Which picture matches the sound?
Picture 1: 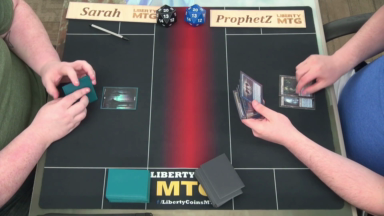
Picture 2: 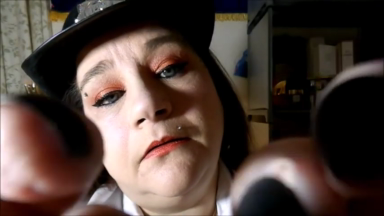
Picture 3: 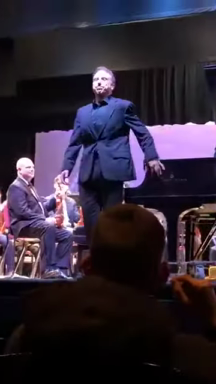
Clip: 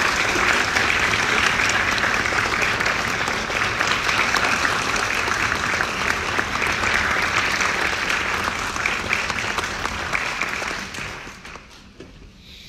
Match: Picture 3